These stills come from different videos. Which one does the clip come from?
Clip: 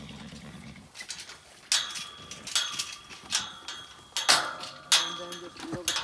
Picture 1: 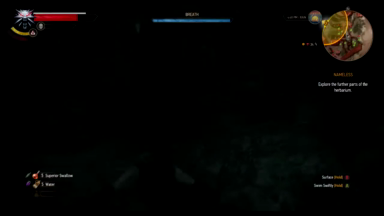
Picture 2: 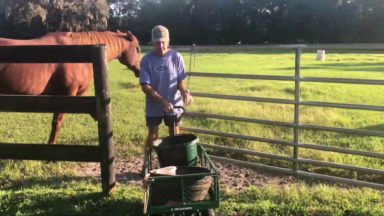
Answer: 2